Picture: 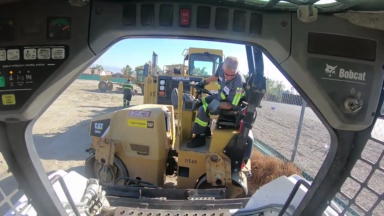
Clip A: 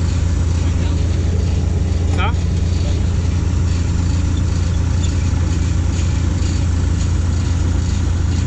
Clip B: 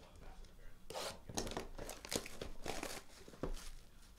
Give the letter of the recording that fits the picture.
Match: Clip A